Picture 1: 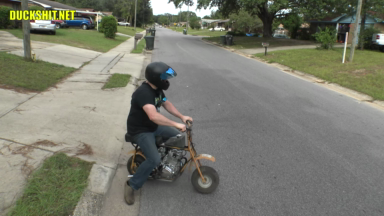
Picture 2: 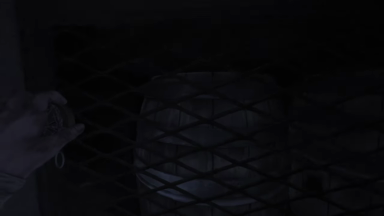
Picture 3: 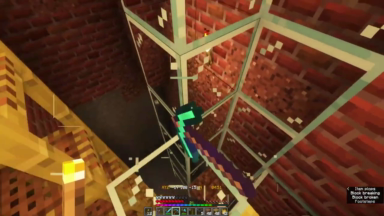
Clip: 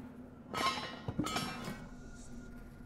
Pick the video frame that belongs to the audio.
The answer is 2